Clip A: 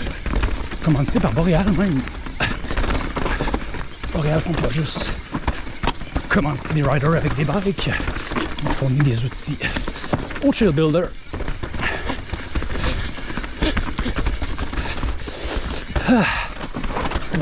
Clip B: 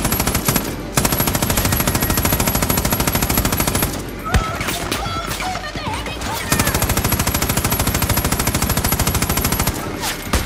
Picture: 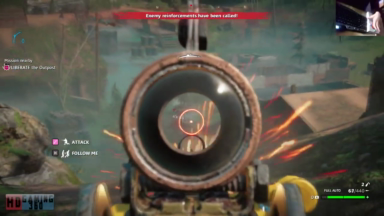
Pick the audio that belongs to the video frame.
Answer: B